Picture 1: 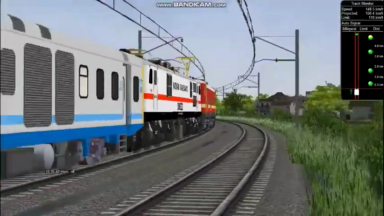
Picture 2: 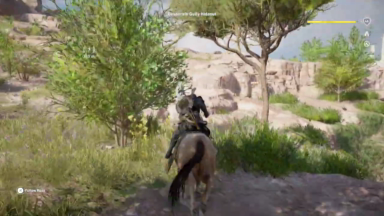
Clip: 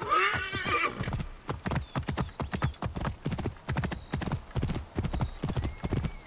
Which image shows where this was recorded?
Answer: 2